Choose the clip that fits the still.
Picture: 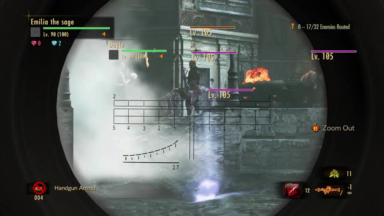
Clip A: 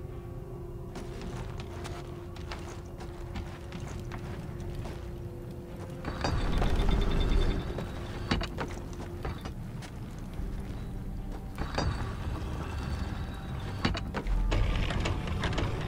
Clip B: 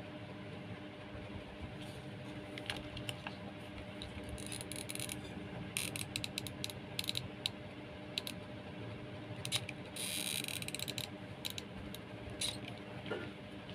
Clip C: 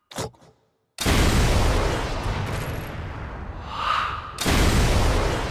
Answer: C